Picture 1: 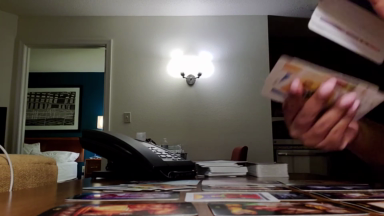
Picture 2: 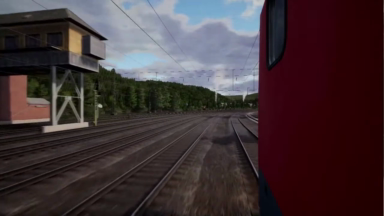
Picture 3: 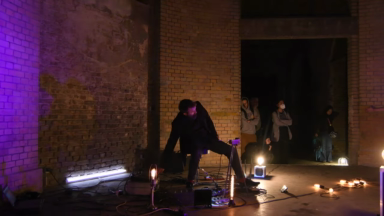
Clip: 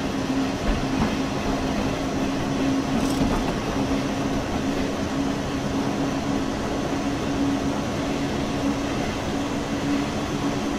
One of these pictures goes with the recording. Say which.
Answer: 2